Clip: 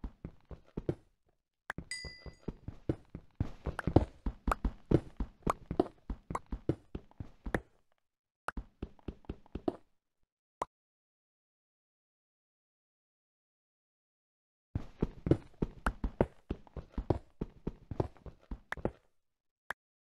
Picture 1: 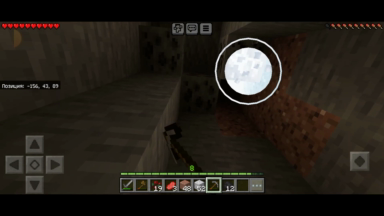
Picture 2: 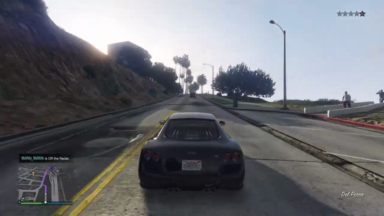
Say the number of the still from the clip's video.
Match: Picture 1